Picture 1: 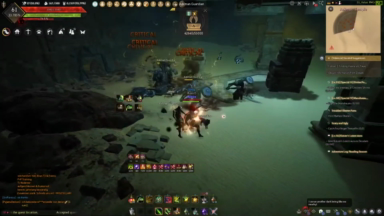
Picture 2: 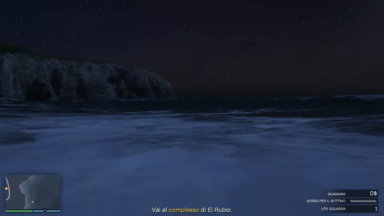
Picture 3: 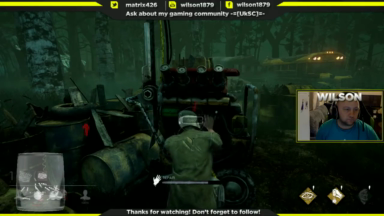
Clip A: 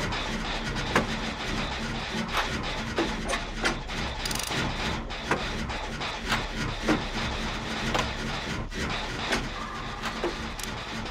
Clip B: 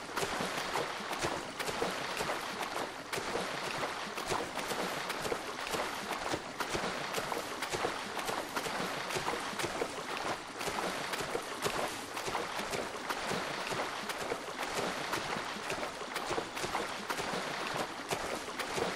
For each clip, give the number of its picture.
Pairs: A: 3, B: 2